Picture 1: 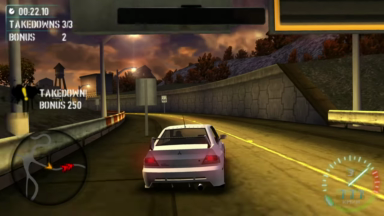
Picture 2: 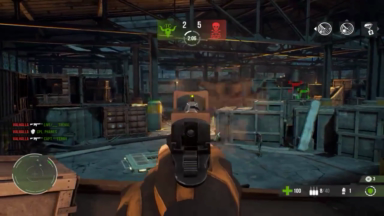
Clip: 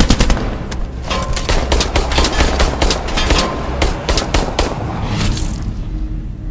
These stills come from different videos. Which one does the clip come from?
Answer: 2